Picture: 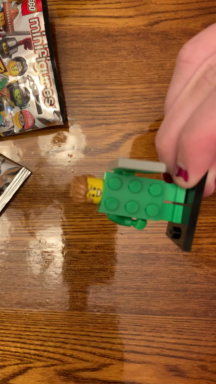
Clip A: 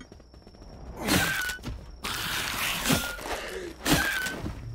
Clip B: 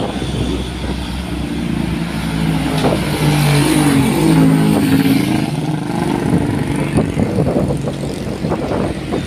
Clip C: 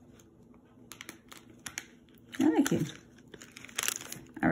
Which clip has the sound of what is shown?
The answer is C